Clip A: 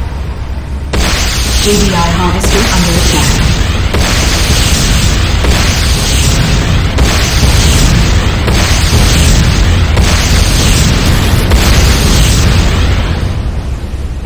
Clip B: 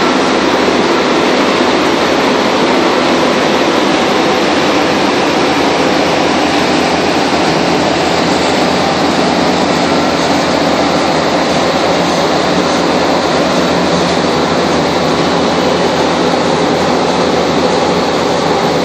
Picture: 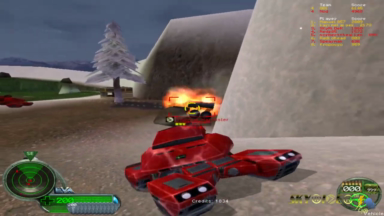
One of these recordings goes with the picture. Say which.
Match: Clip A